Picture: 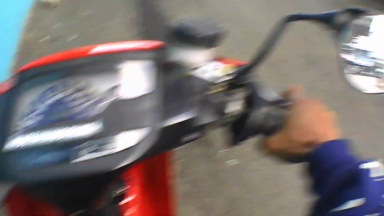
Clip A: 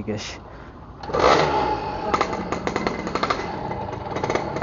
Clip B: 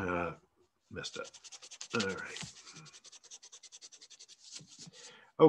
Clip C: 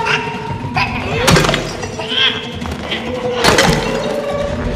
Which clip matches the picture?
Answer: A